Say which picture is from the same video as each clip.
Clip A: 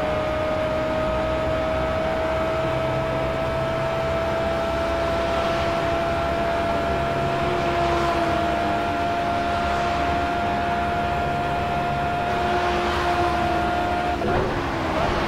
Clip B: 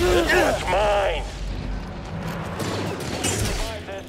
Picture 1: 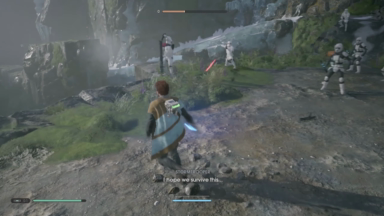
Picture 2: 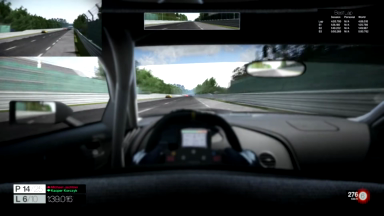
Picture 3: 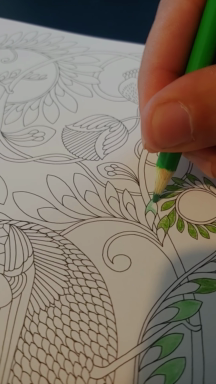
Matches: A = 2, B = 1